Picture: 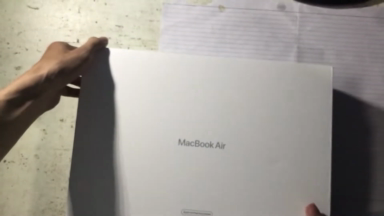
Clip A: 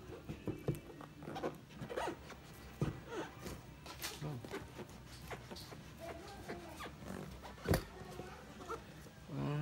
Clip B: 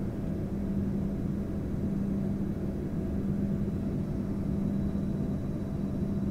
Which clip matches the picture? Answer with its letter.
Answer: A